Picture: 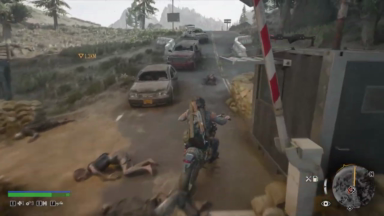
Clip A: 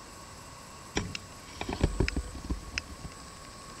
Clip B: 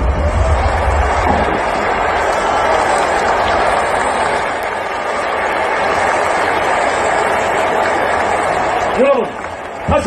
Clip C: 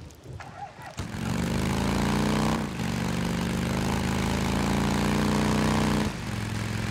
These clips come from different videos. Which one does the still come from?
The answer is C